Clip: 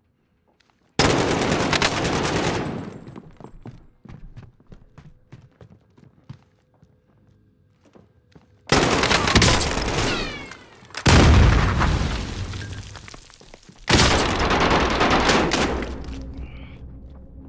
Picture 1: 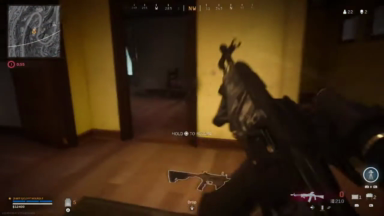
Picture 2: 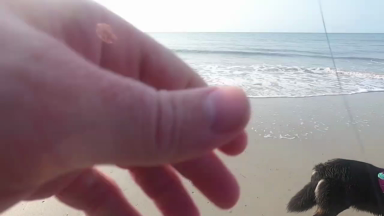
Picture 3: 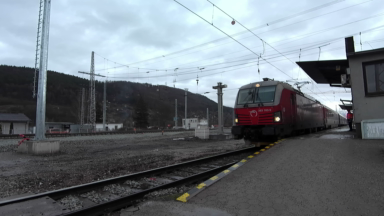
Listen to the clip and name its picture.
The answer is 1